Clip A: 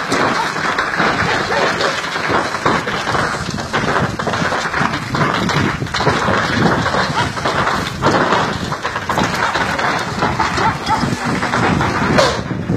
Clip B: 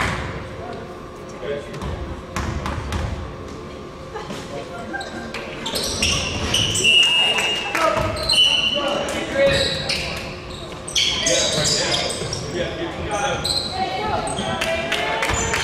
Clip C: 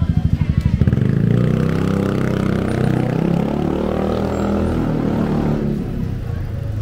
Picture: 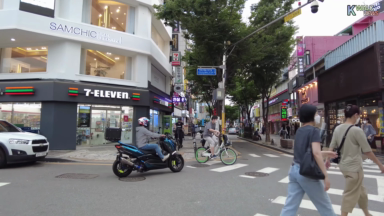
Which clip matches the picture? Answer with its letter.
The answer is C